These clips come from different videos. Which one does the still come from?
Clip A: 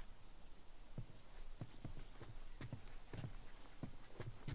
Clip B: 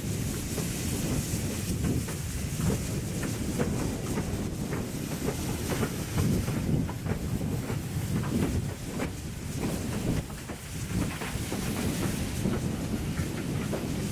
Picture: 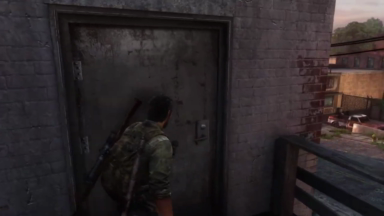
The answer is A